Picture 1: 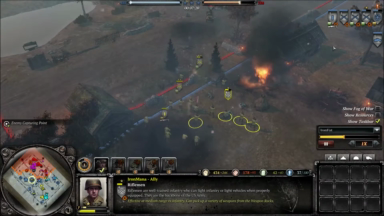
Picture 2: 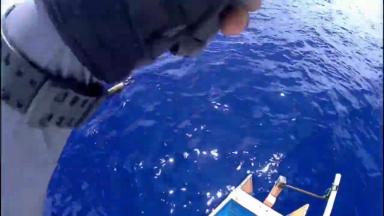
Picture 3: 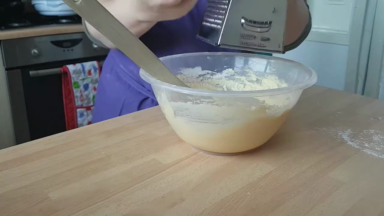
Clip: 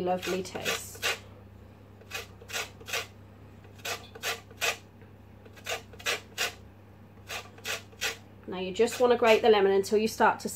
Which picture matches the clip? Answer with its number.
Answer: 3